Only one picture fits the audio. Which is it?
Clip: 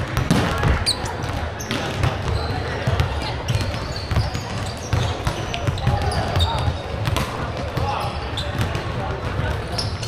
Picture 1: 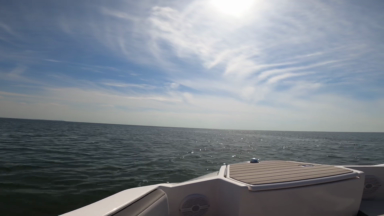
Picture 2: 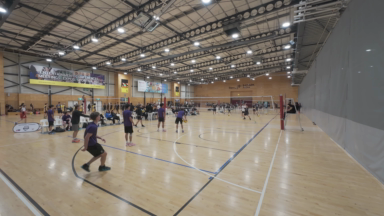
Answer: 2